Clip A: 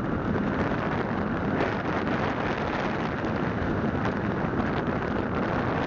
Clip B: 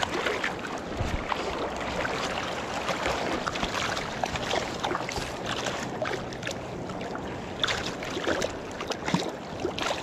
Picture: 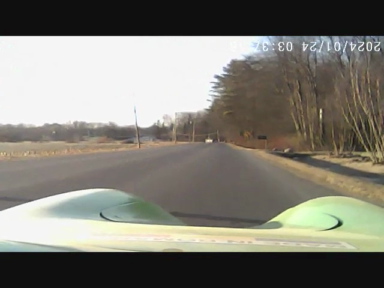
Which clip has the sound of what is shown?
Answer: A